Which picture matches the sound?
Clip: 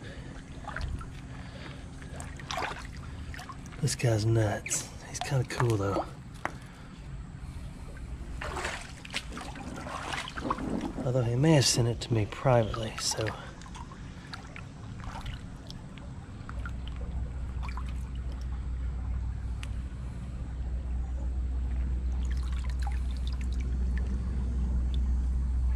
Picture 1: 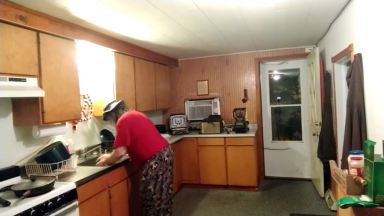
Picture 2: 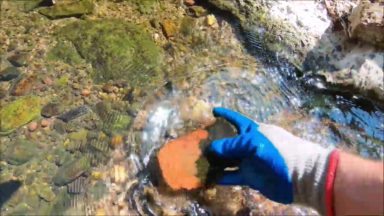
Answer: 2